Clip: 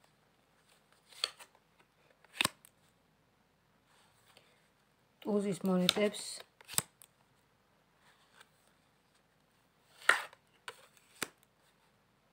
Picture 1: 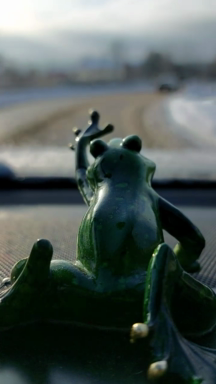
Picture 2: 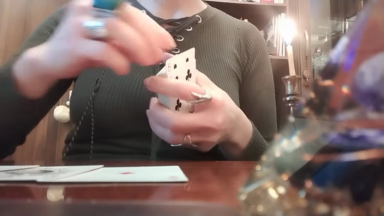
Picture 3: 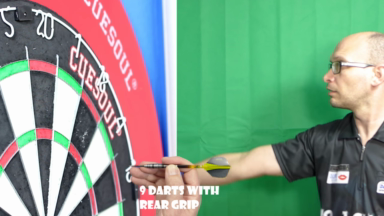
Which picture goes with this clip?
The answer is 2